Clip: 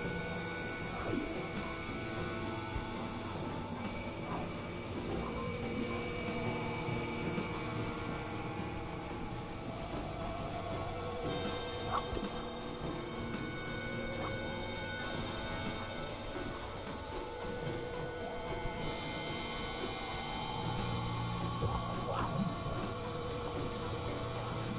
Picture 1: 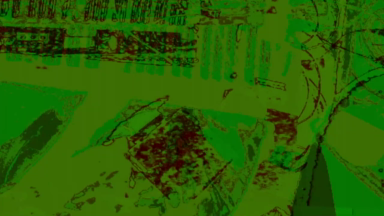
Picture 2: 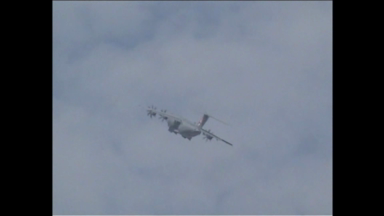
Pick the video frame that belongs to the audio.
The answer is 1